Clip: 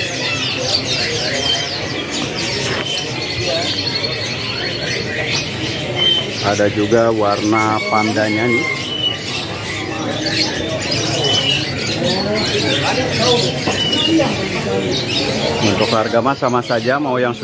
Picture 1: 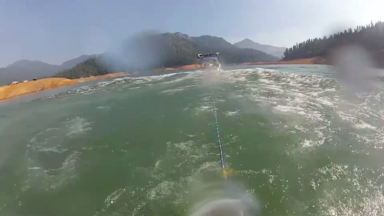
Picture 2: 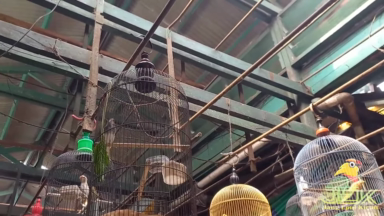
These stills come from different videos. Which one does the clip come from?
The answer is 2